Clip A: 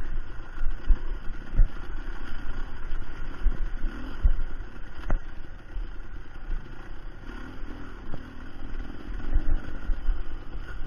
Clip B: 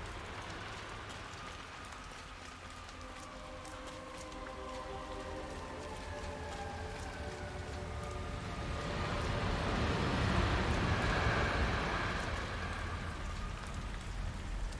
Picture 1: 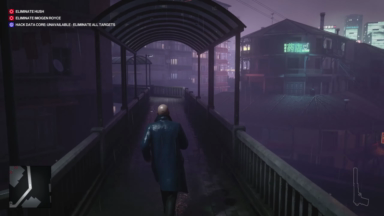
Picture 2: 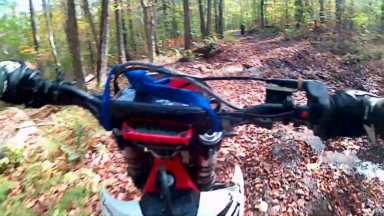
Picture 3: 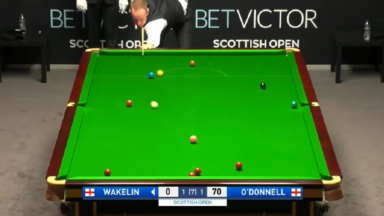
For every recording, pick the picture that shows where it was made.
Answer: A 2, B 1